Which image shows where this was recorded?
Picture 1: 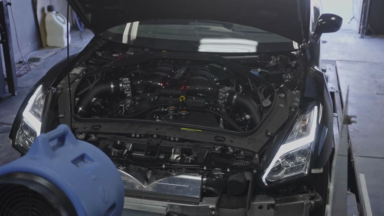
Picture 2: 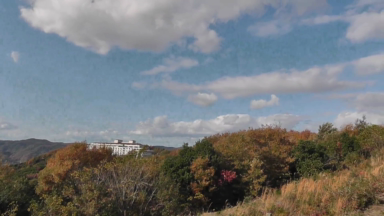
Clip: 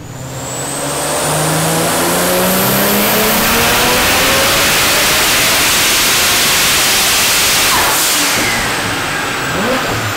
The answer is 1